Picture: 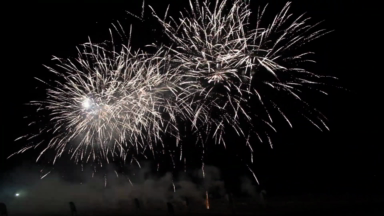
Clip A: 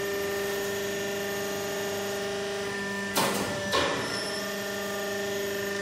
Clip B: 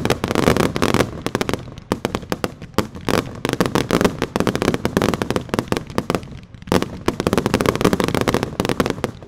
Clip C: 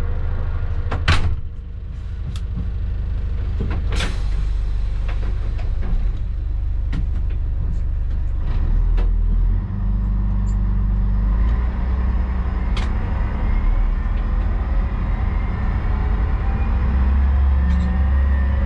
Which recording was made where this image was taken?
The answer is B